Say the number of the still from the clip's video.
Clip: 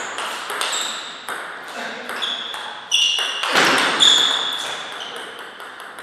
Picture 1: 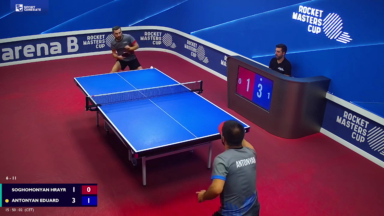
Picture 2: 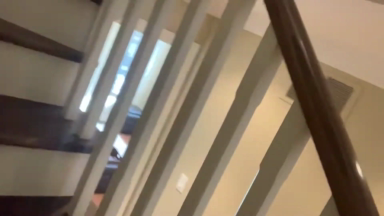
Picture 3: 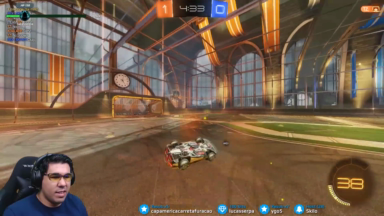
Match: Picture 1